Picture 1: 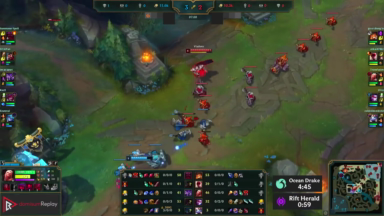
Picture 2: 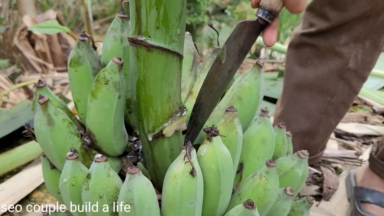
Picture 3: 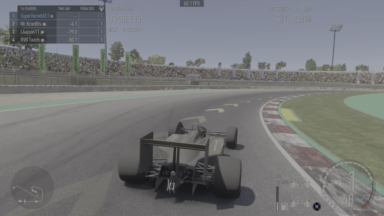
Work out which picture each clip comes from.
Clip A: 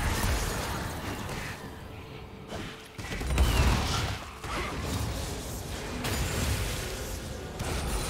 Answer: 1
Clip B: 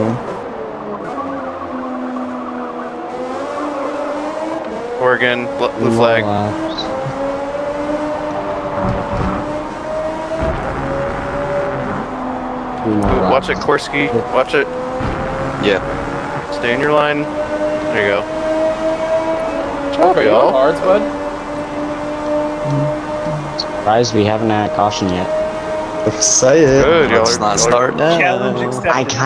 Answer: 3